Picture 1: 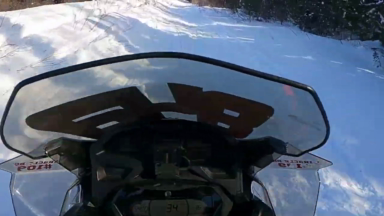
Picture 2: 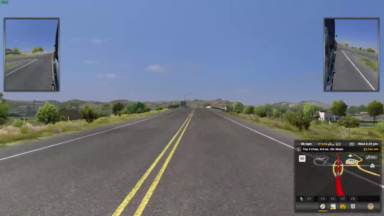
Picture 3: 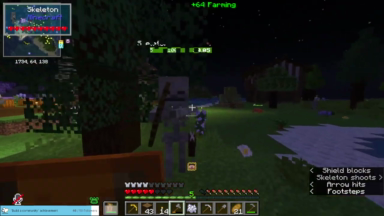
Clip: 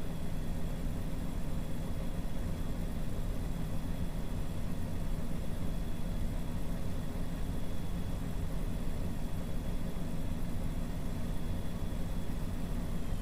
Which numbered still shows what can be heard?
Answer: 2